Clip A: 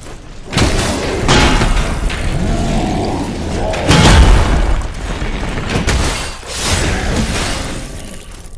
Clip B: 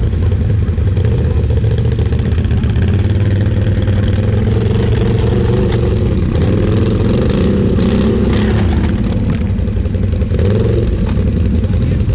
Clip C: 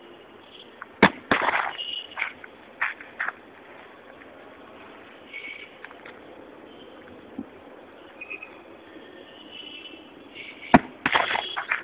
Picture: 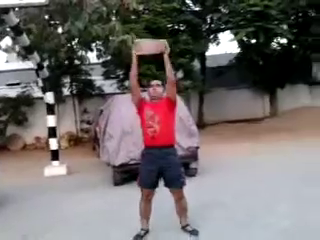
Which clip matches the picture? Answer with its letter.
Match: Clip C